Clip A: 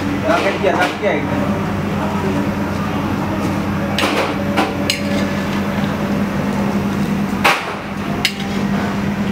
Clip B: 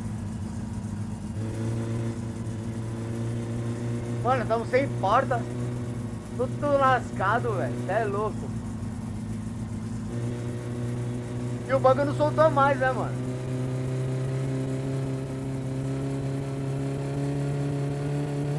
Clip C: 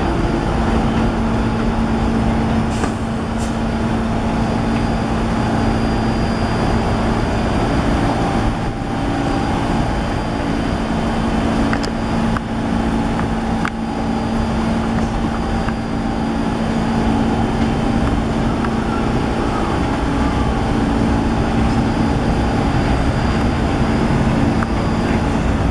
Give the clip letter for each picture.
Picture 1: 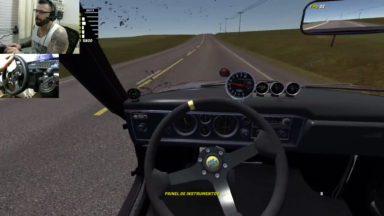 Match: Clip B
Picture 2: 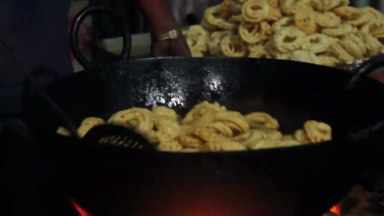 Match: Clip A